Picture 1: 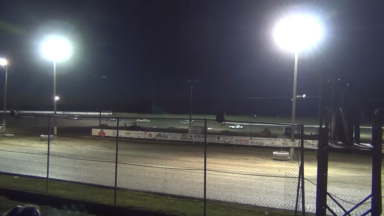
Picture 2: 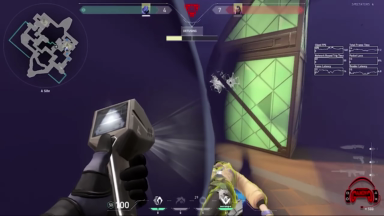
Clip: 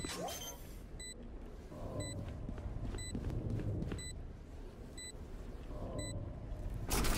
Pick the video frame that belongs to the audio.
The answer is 2